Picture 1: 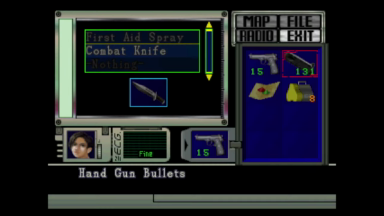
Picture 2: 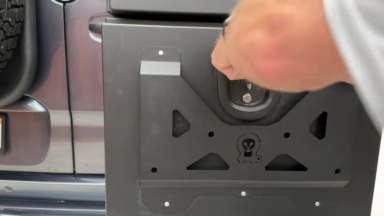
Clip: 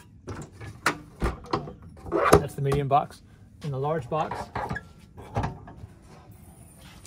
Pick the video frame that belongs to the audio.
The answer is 2